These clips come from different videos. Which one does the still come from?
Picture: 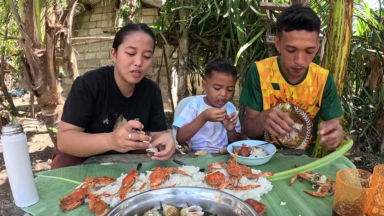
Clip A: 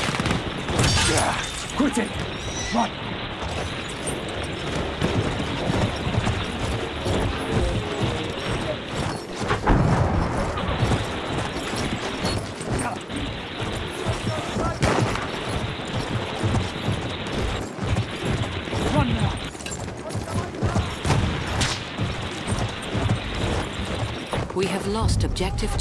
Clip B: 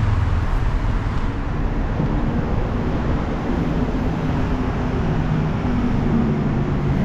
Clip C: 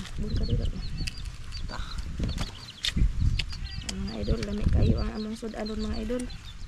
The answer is C